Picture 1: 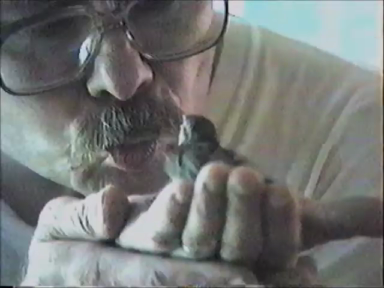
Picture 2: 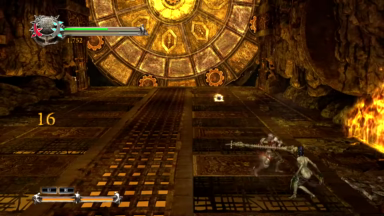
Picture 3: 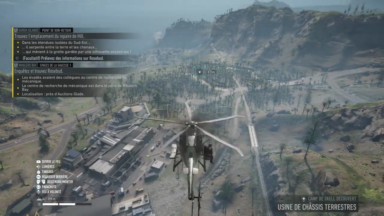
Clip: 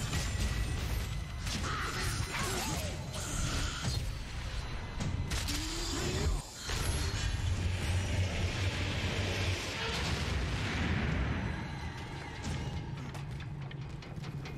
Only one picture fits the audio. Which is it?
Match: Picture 2